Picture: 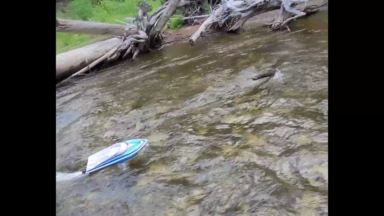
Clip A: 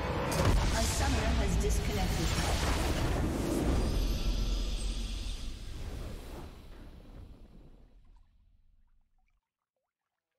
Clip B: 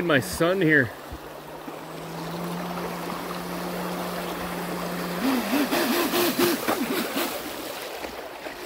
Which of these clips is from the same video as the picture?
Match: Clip B